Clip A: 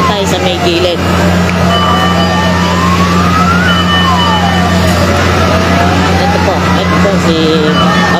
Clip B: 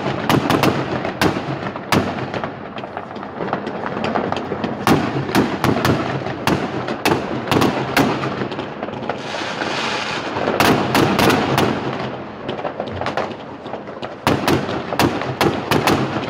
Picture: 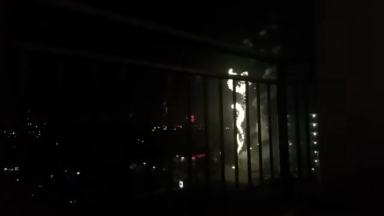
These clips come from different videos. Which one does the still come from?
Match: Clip B